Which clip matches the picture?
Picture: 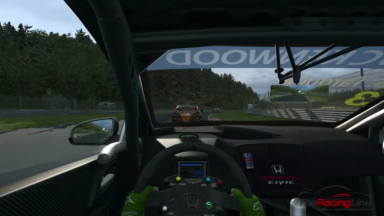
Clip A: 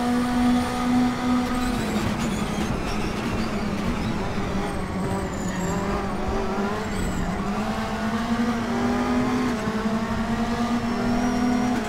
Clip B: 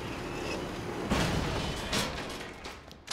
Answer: A